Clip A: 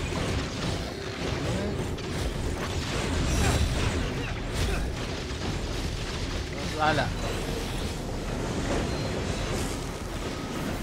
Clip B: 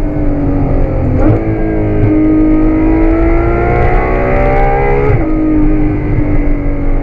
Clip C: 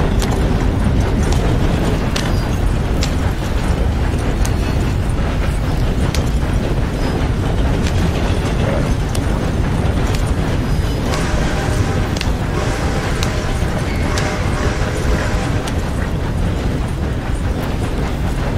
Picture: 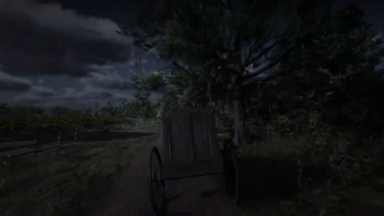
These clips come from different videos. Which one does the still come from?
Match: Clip C